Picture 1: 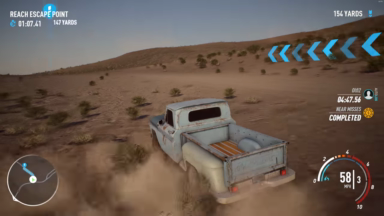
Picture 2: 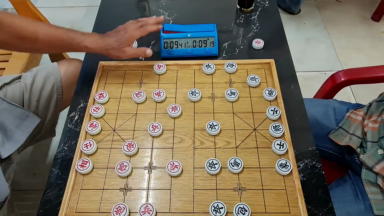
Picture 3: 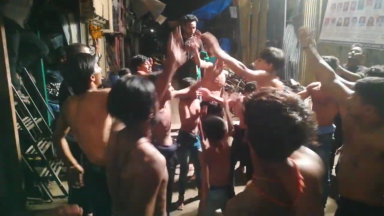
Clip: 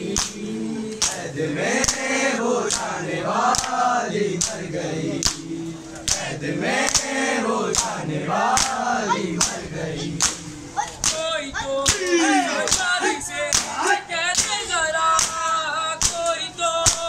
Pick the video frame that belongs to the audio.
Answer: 3